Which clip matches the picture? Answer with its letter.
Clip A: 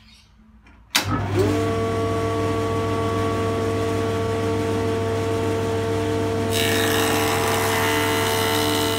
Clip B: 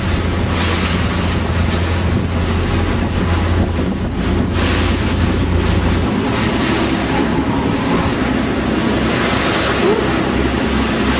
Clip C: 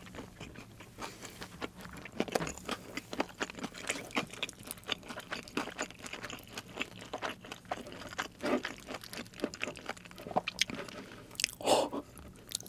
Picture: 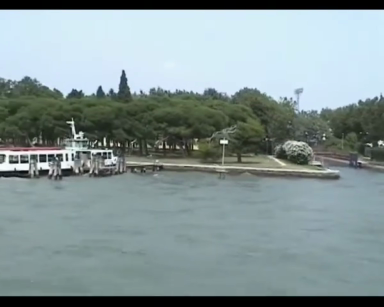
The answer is B